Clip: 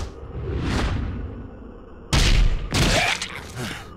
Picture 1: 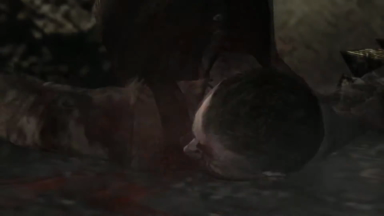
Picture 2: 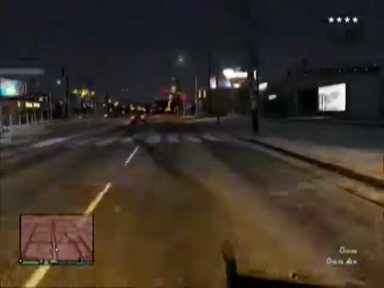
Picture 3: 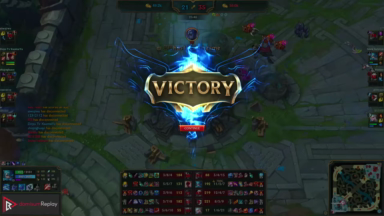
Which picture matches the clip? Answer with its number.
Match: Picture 1